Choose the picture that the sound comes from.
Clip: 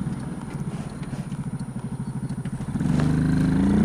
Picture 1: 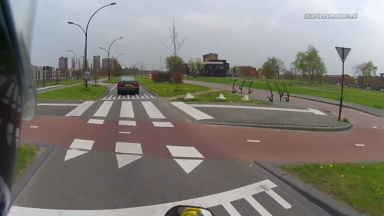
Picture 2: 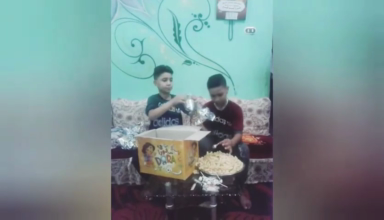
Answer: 1